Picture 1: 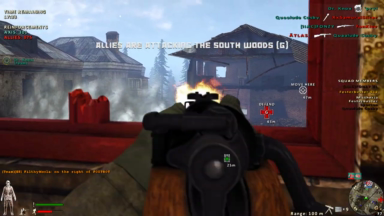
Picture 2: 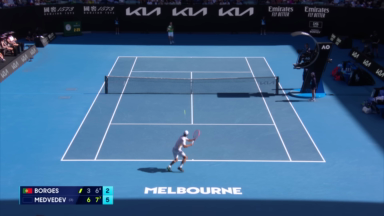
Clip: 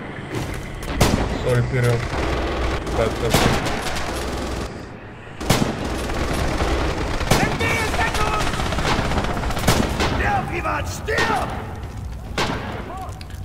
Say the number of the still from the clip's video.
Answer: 1